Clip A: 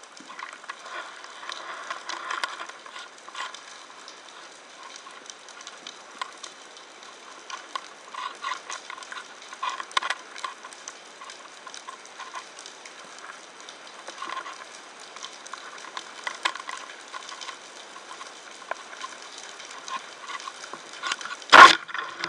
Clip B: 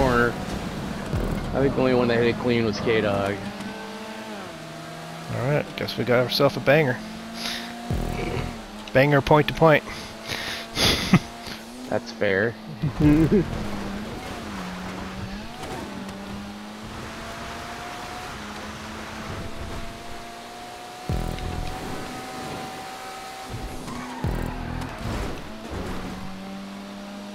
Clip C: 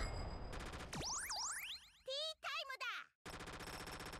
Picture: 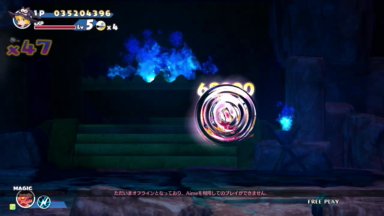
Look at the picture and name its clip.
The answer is C